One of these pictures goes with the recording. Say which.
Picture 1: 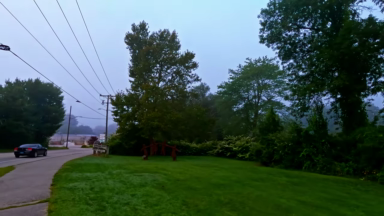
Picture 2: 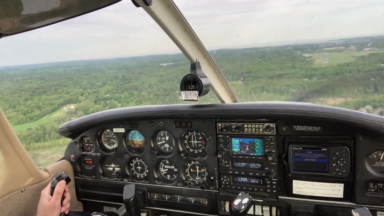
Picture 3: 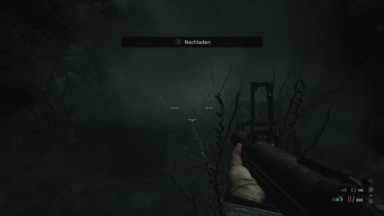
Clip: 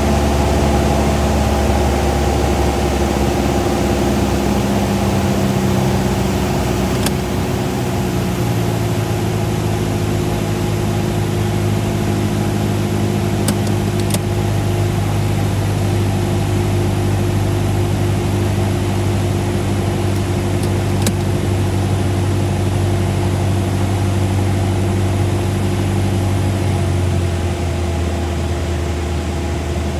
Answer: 2